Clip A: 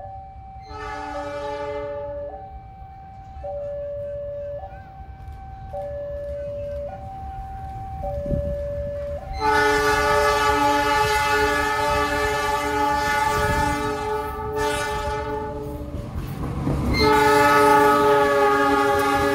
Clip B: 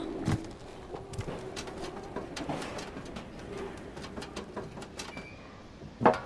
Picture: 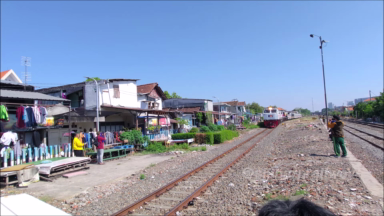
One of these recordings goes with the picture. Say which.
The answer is A